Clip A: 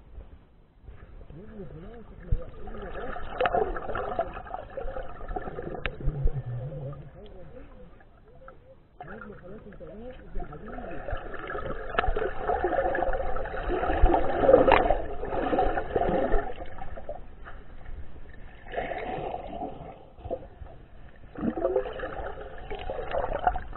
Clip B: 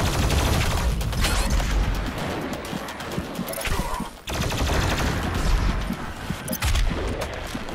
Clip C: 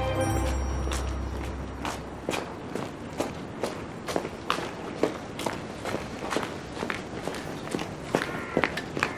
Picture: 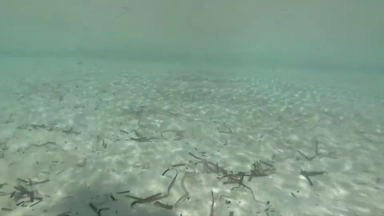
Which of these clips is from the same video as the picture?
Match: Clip A